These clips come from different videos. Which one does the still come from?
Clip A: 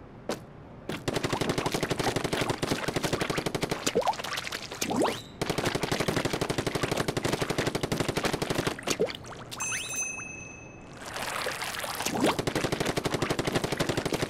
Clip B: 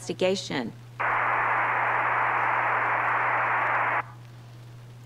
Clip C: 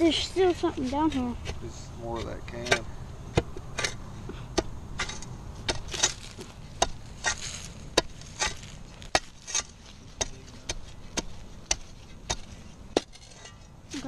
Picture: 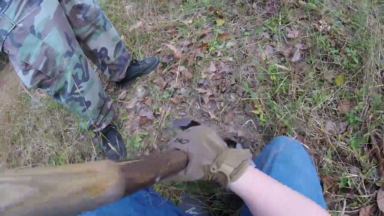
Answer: C